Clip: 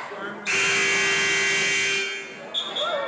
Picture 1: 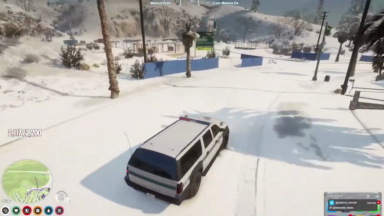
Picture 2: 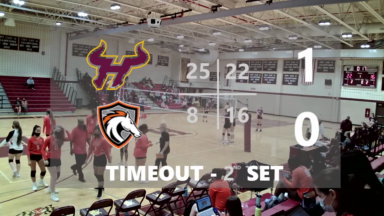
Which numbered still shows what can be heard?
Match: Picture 2